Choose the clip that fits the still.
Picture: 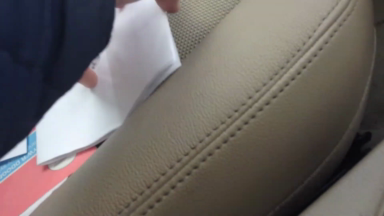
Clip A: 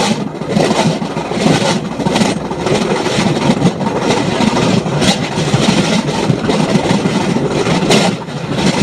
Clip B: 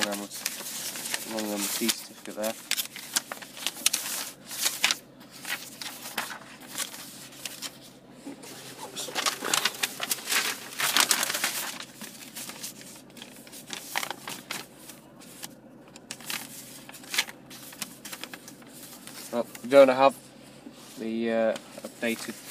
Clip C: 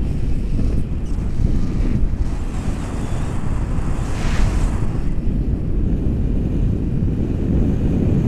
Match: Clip B